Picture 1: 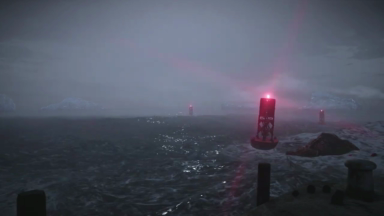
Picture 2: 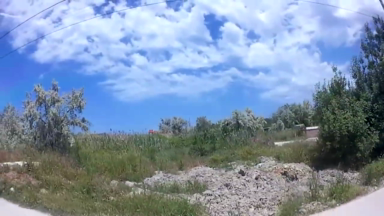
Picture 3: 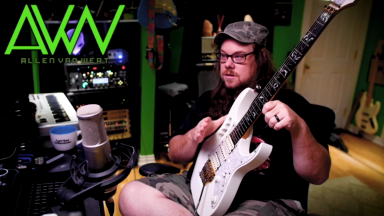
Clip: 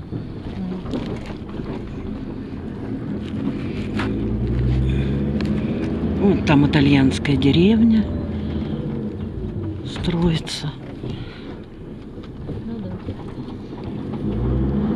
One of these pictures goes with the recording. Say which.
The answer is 2